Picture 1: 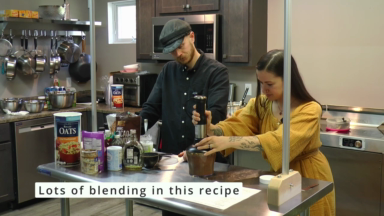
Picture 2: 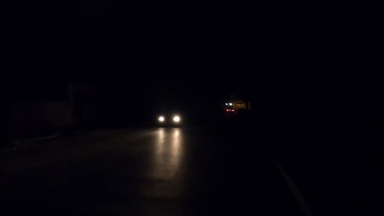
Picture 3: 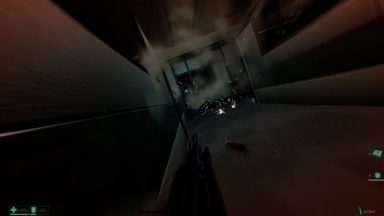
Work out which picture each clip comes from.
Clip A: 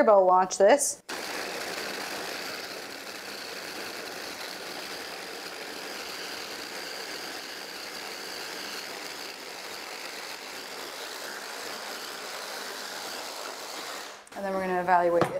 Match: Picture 1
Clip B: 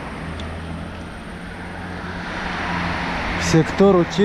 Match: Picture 2